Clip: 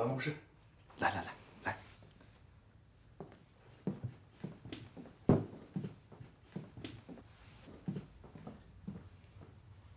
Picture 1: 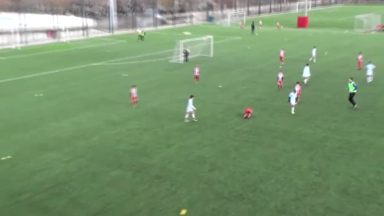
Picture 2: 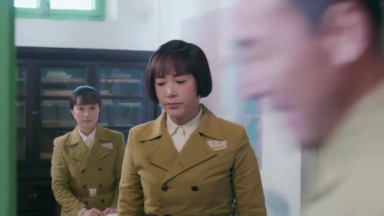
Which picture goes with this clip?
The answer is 2